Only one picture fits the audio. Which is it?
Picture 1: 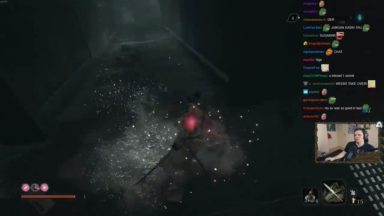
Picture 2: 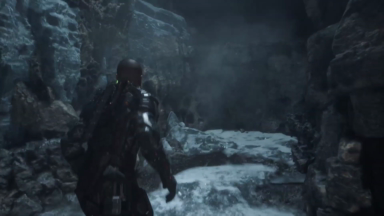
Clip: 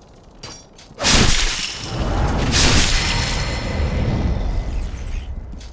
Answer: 1